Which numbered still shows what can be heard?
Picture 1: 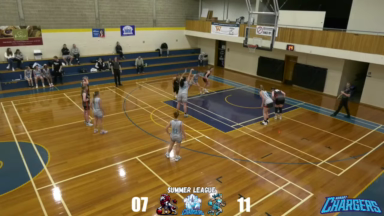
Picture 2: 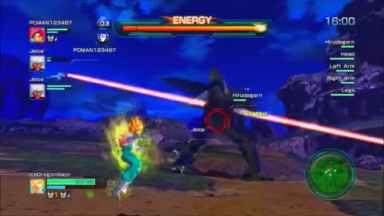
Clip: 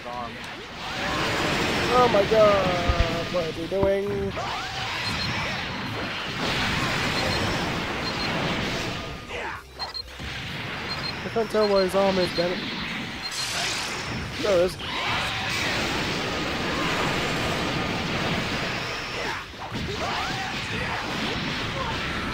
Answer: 2